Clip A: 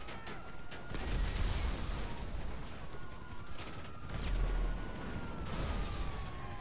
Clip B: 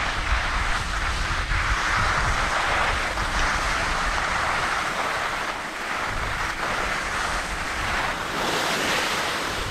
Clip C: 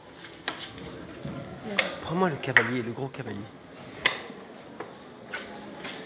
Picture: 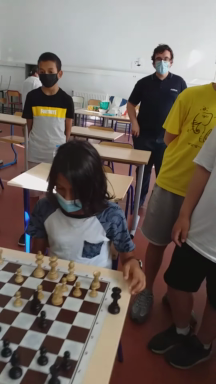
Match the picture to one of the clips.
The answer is C